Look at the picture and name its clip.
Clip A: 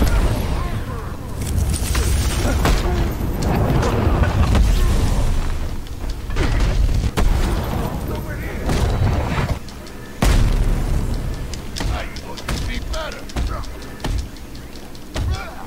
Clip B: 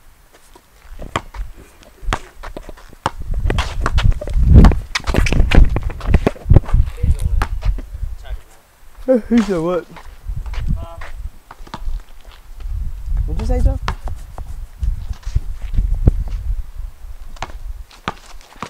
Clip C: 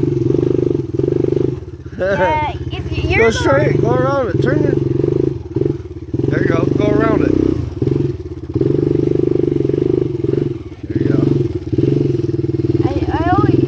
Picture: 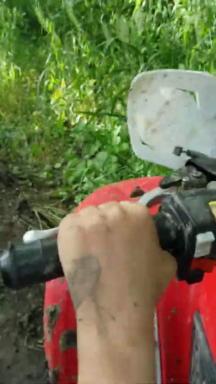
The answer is C